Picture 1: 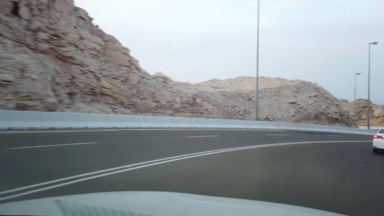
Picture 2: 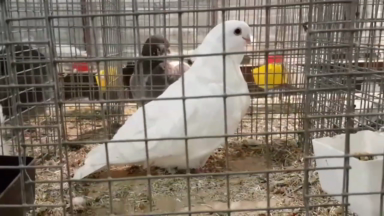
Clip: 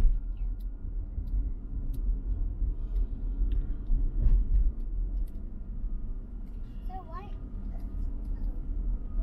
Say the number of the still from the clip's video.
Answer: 1